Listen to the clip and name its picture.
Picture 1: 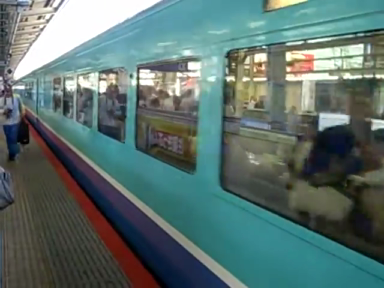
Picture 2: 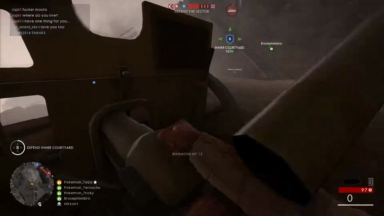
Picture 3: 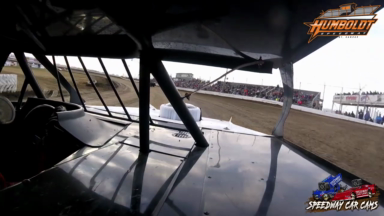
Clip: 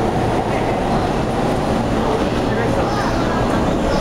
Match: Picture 1